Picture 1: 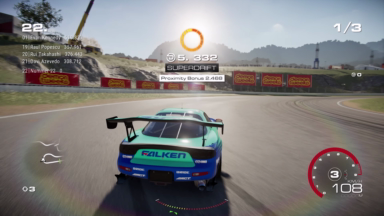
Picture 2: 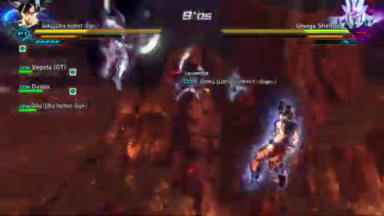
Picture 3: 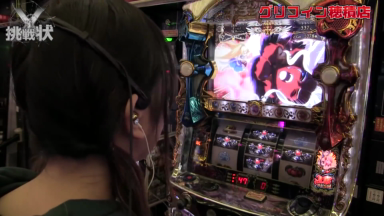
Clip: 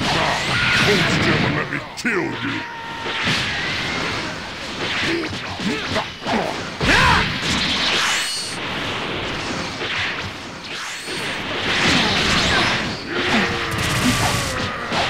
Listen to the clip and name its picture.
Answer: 2